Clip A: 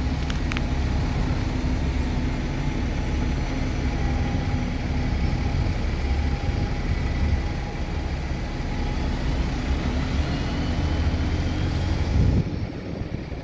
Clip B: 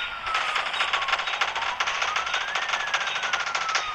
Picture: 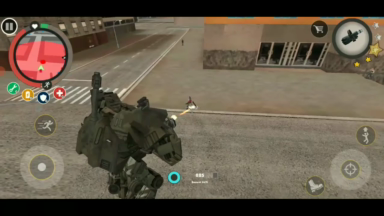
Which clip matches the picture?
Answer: B